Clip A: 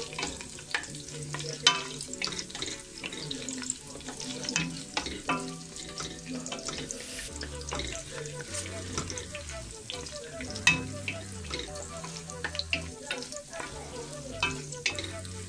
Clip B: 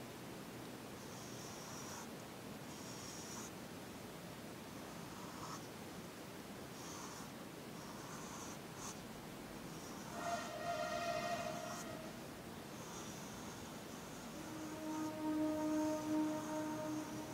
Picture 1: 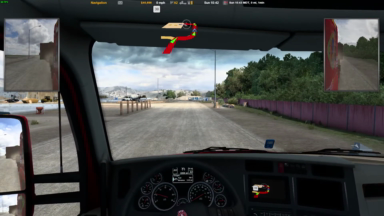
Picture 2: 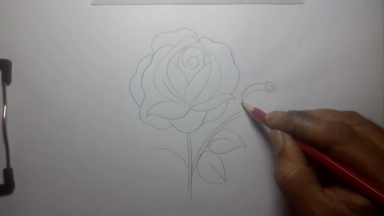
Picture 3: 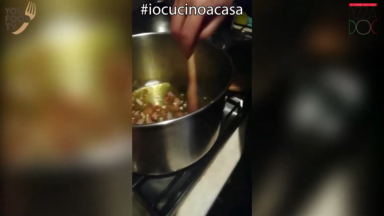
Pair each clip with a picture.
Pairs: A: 3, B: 2